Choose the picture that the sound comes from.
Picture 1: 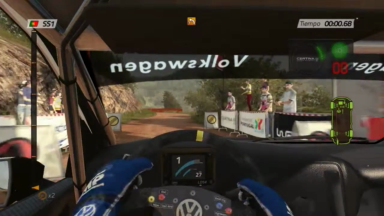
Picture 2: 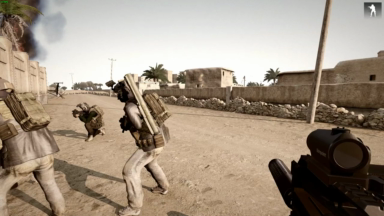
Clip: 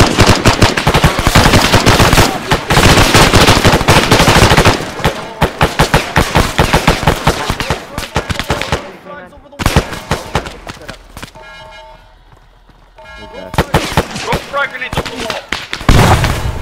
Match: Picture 2